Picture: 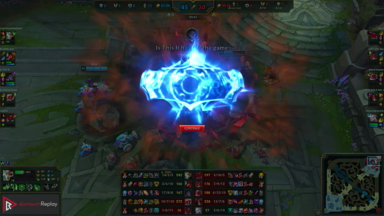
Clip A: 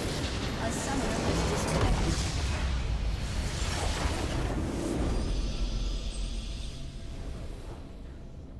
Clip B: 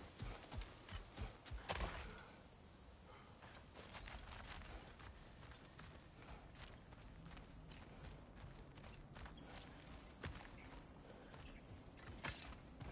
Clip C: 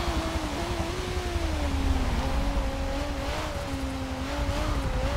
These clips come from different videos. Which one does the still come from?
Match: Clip A